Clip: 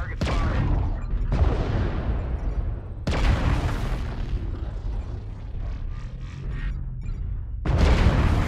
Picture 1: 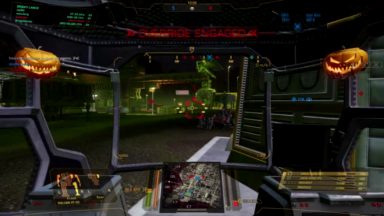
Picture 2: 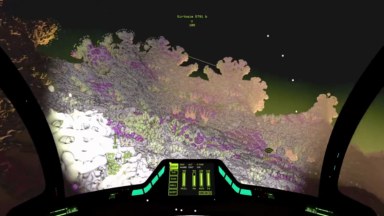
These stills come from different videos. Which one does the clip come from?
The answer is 1